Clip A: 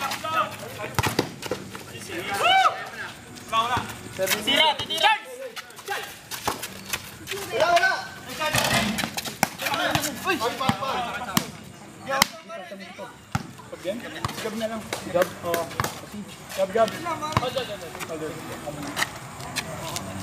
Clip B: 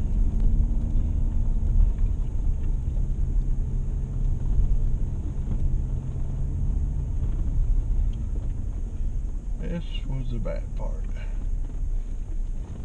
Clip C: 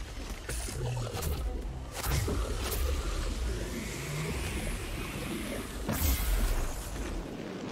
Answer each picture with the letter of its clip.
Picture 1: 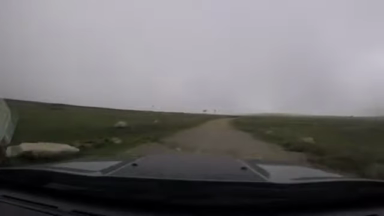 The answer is B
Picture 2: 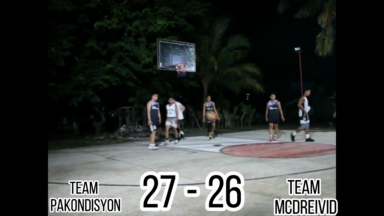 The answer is A